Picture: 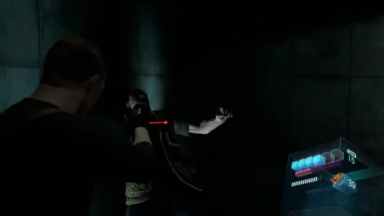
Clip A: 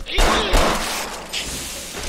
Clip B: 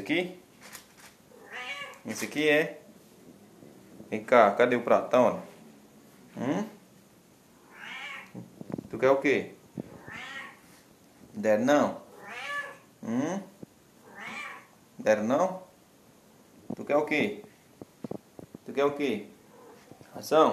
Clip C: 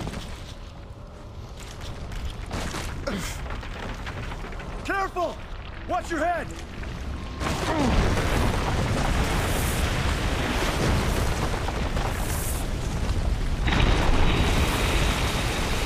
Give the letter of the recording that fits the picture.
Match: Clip A